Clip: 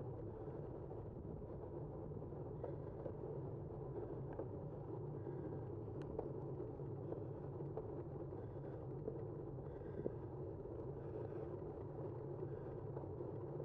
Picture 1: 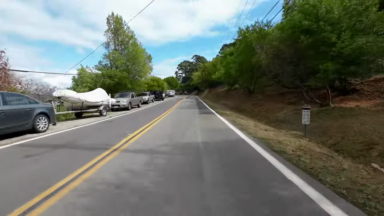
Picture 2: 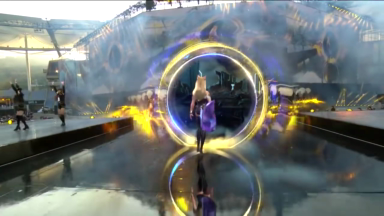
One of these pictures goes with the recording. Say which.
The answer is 1